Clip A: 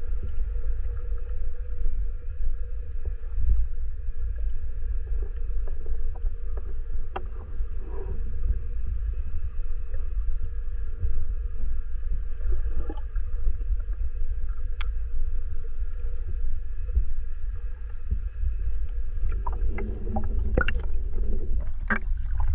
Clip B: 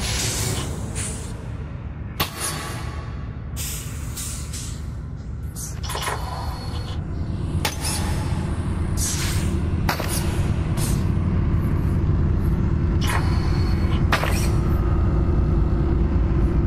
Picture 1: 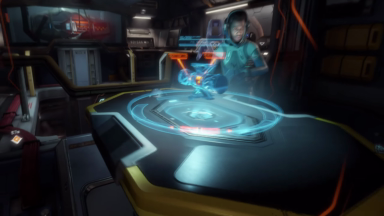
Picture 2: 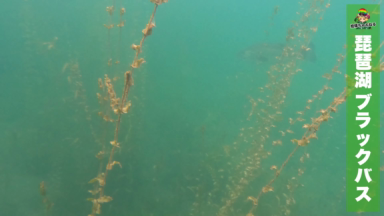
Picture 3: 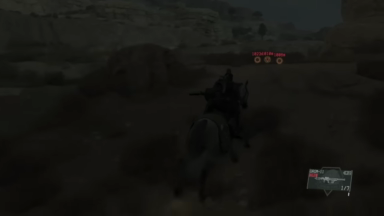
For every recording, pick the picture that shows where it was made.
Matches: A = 2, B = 1